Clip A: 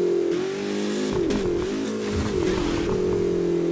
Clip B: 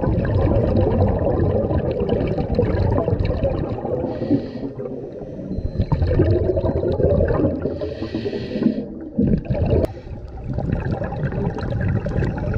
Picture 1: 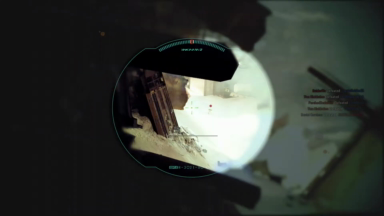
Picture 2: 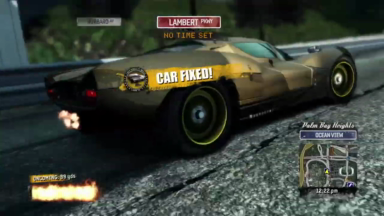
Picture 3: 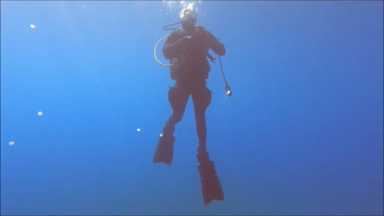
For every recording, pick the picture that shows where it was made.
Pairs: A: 2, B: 3